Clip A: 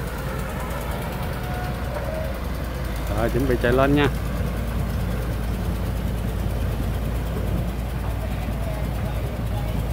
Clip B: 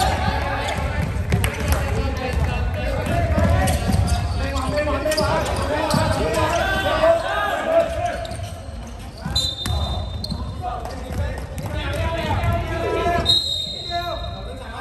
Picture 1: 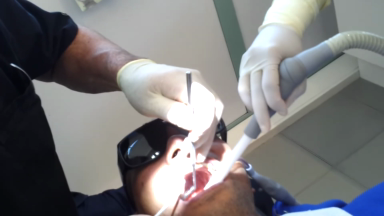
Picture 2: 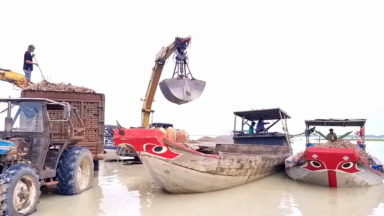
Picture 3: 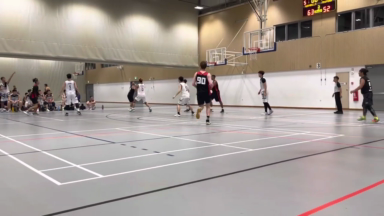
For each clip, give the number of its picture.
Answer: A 2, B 3